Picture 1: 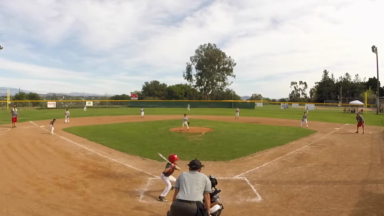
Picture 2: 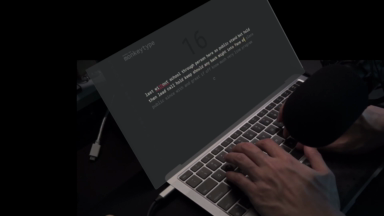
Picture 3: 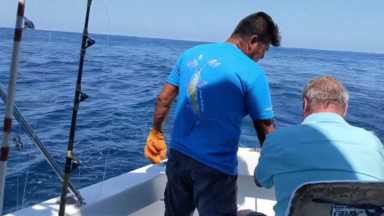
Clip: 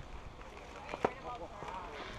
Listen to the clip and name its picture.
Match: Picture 1